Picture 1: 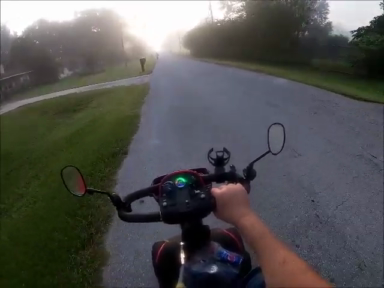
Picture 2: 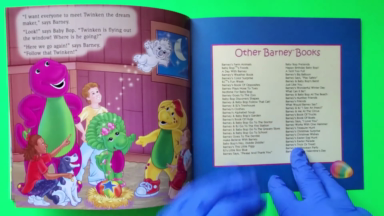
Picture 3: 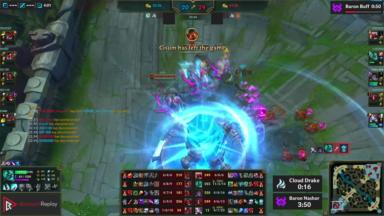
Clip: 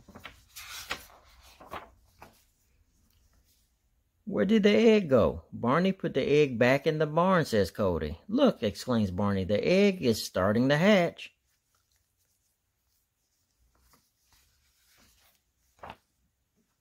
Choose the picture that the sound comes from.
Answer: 2